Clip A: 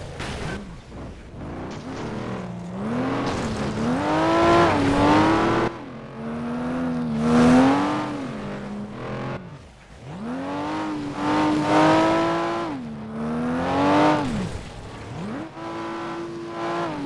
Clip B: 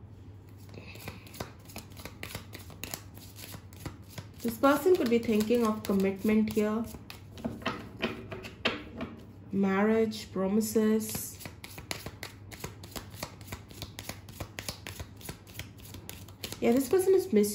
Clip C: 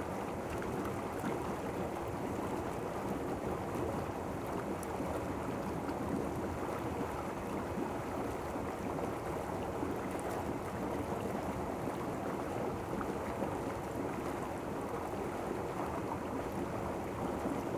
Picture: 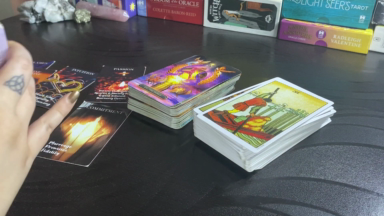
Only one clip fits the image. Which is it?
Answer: B